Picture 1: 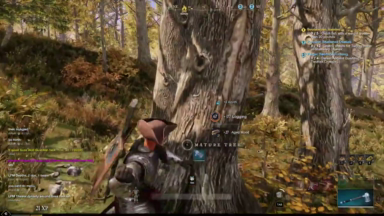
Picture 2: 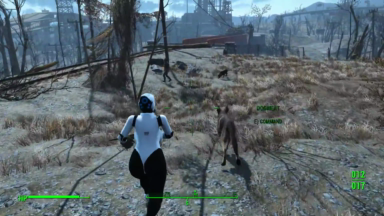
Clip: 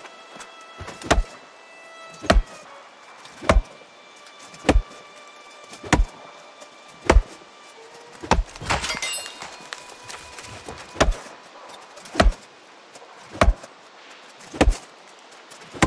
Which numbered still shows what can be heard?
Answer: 1